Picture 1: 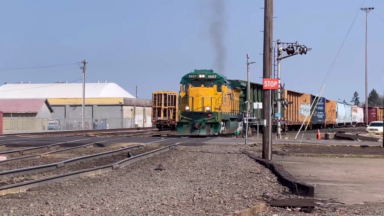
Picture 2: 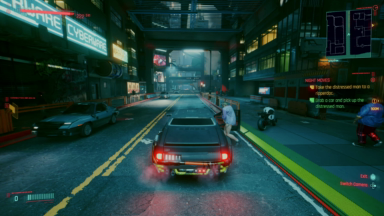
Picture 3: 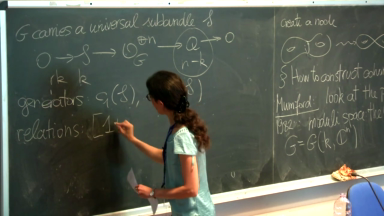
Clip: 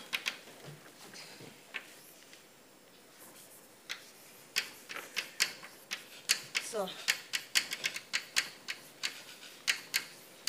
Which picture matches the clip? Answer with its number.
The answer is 3